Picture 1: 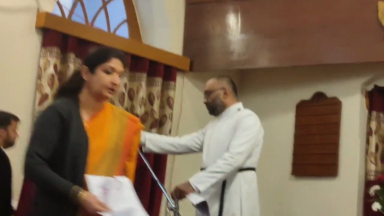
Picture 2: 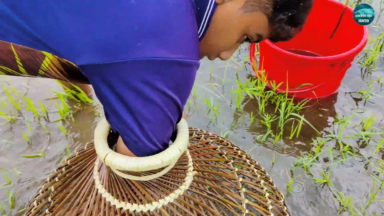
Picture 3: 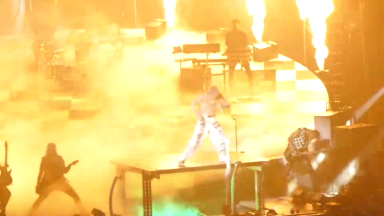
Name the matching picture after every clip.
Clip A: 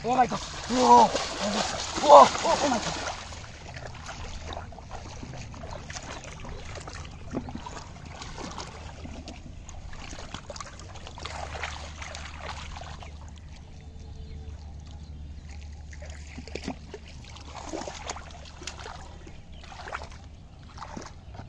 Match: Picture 2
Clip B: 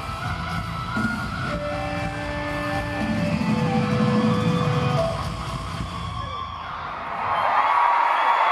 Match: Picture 3